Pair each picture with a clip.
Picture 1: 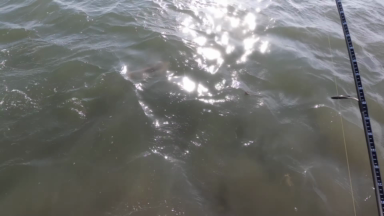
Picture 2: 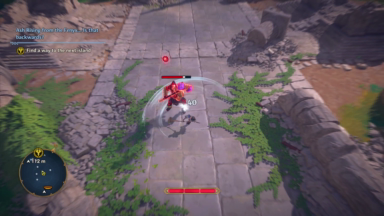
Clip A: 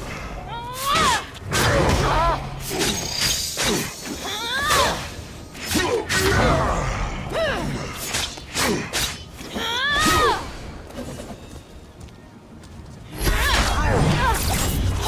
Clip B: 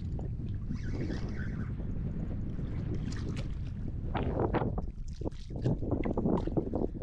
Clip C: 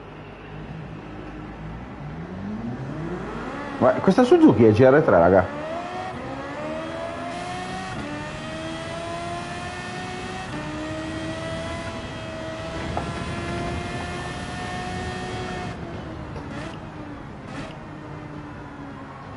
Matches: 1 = B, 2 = A